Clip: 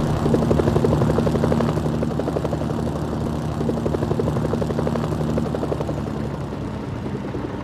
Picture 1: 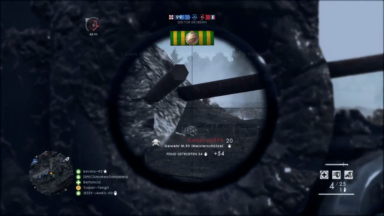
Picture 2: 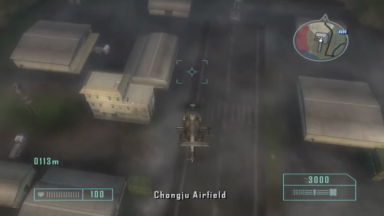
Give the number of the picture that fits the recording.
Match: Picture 2